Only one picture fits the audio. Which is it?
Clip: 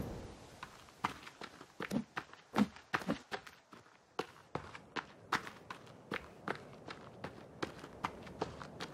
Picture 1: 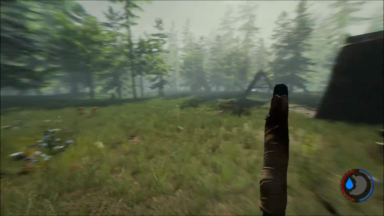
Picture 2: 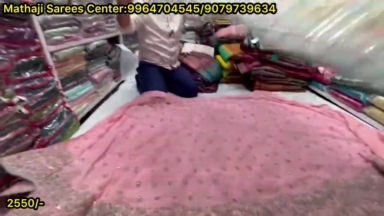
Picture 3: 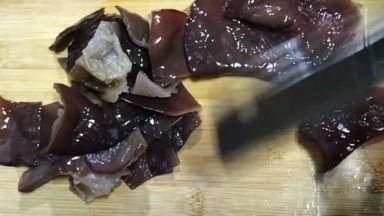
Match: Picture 1